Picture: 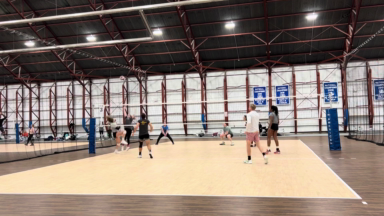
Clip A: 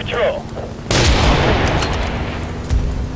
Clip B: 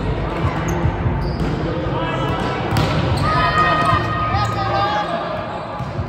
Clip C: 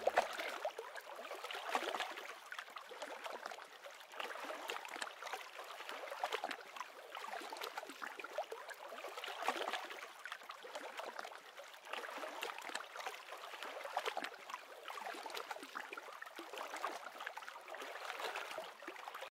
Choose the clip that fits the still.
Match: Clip B